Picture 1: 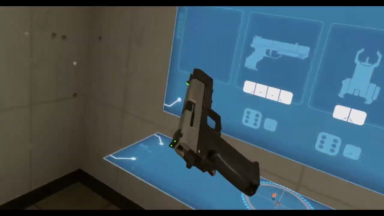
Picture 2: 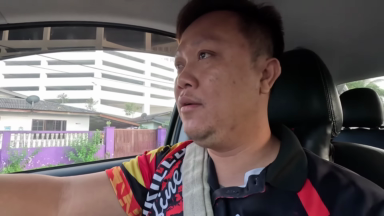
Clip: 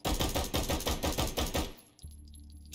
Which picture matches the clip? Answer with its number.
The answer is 1